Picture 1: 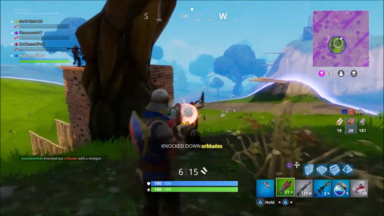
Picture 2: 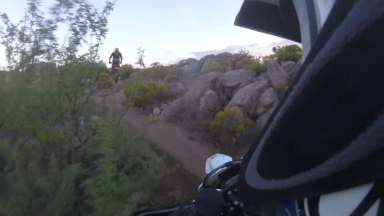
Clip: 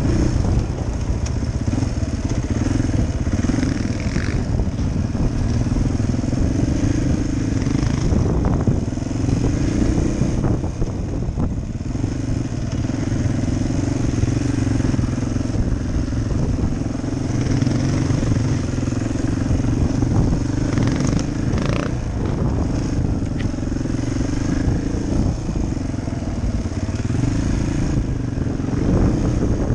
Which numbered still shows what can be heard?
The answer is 2